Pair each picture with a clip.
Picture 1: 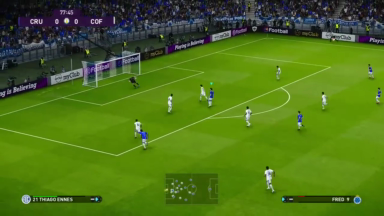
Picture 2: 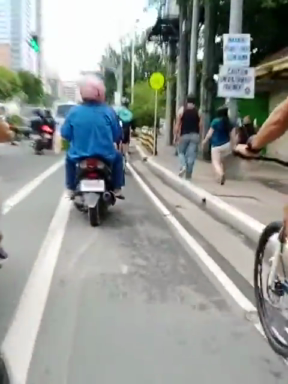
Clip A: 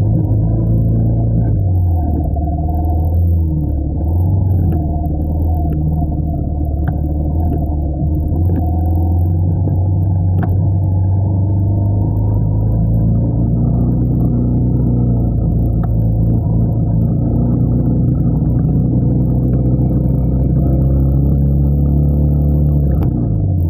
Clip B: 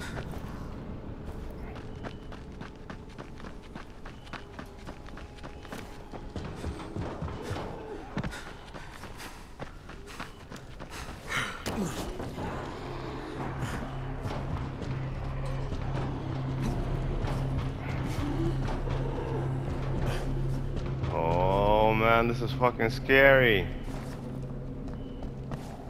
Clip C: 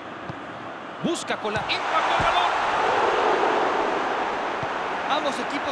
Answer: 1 C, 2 A